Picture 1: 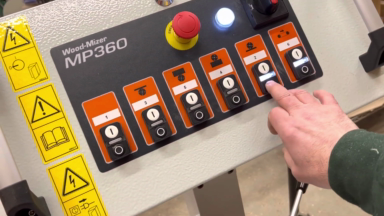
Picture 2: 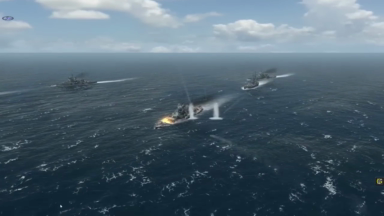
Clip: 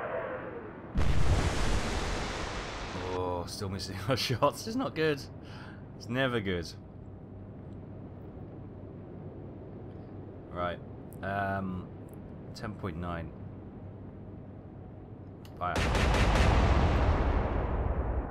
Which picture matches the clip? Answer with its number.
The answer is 2